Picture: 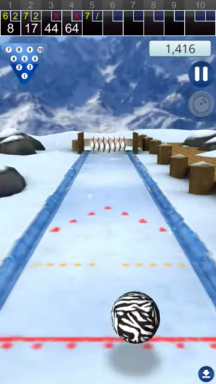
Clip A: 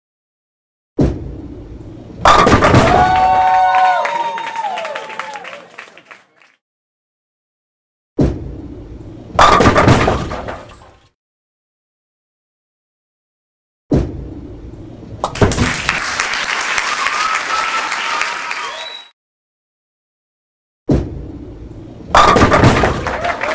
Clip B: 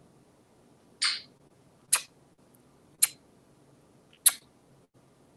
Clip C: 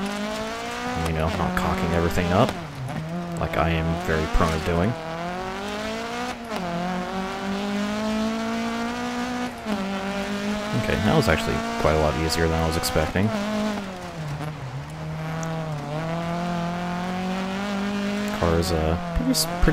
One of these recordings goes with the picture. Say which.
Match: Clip A